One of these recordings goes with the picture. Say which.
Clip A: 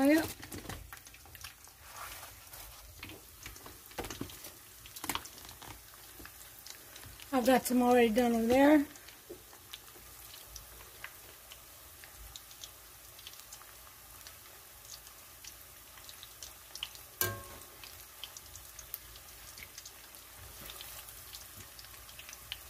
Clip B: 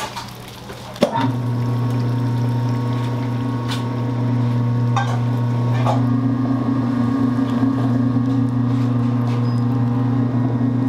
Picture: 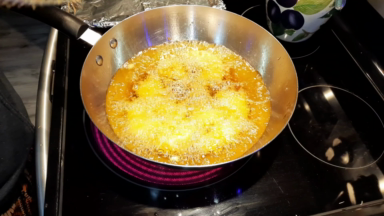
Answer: A